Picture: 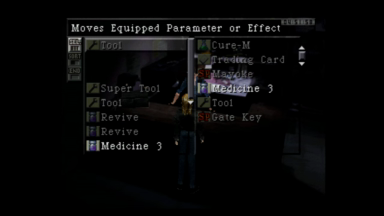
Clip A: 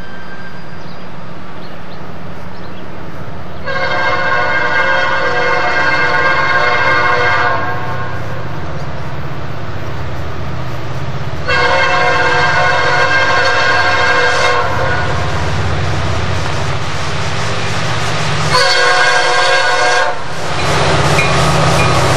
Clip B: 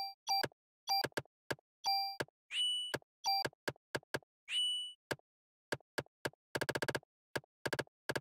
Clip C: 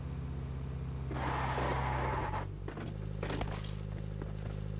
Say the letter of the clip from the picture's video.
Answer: B